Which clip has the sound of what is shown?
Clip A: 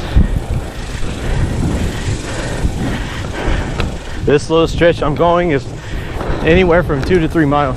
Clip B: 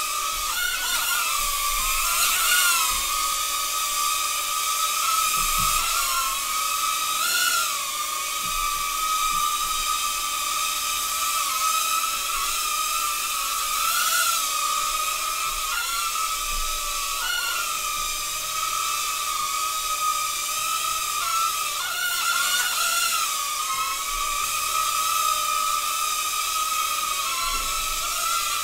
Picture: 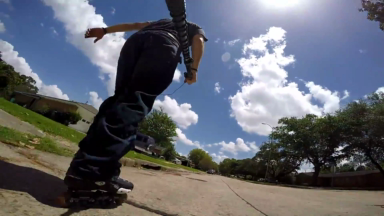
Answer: A